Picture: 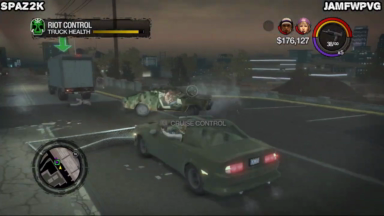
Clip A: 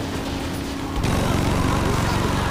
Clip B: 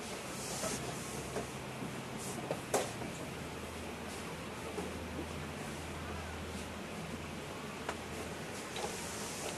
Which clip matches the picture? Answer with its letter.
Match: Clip A